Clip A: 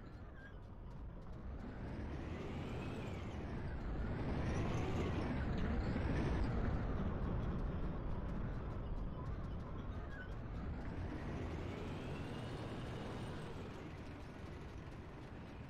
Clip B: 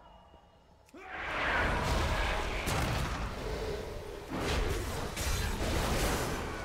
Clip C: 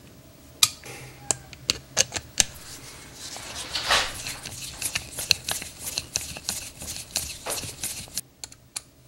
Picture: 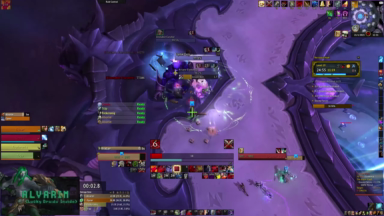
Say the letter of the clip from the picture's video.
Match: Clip B